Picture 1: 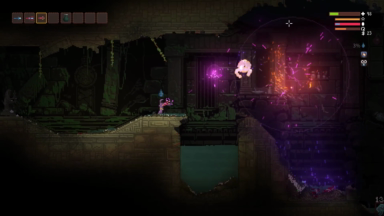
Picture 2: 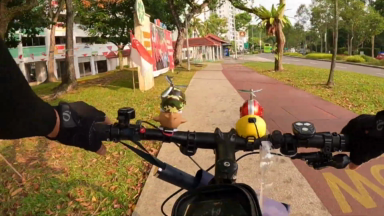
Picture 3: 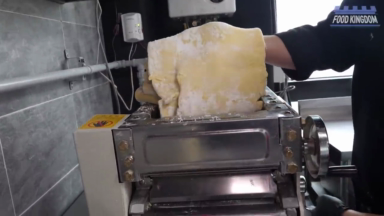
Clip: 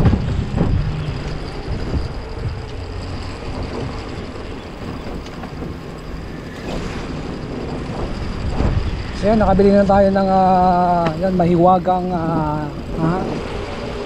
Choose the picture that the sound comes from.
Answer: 2